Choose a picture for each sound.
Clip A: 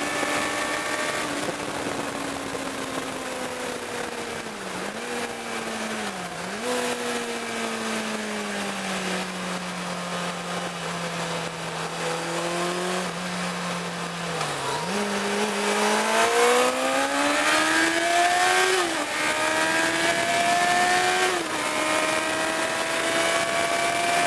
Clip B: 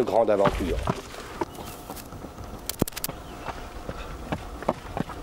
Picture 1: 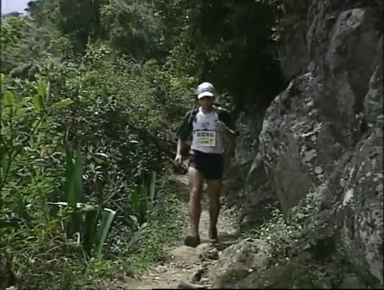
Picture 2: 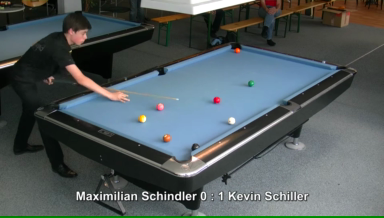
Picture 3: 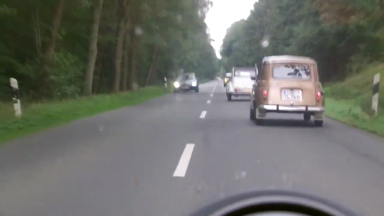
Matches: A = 3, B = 1